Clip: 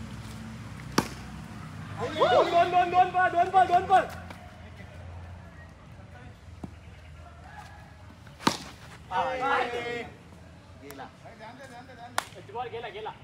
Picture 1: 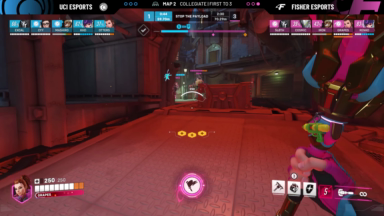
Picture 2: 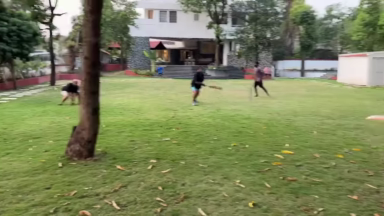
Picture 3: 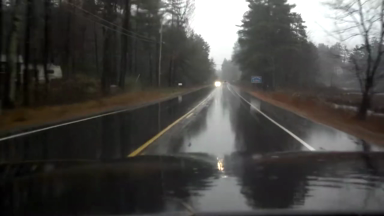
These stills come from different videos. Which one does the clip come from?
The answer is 2